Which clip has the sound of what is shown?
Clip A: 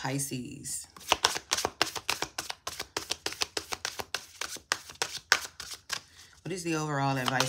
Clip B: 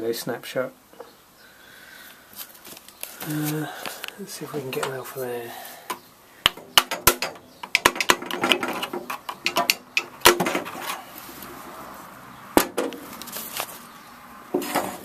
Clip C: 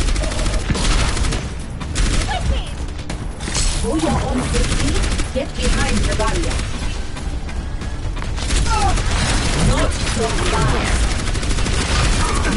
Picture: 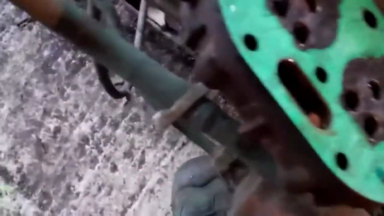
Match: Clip B